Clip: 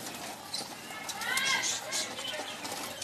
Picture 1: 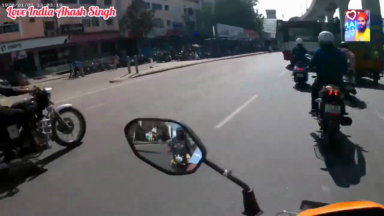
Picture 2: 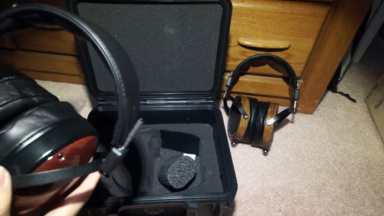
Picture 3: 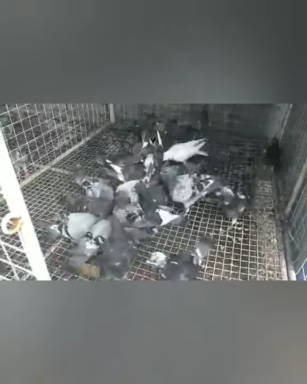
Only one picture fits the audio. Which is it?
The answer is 3